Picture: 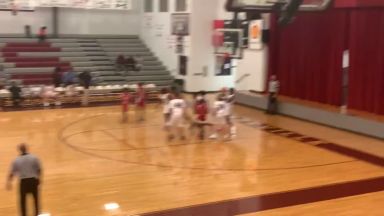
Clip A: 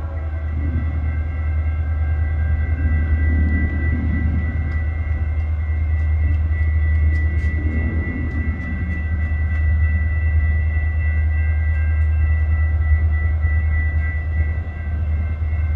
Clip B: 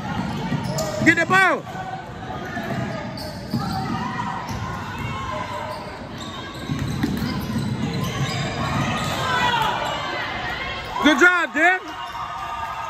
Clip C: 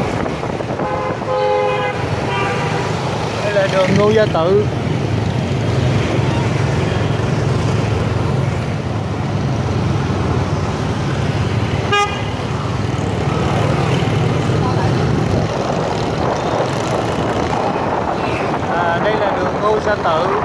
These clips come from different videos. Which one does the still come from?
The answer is B